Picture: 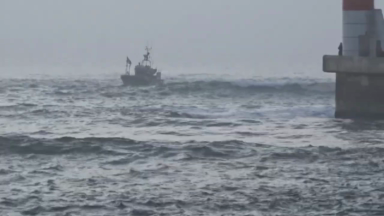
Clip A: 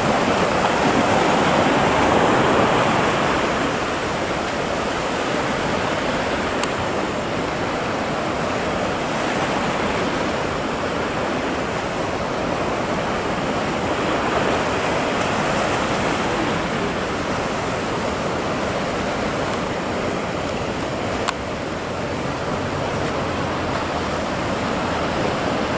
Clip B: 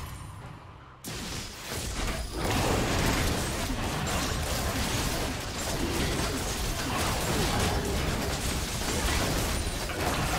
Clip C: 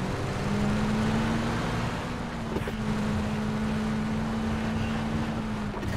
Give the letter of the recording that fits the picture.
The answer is A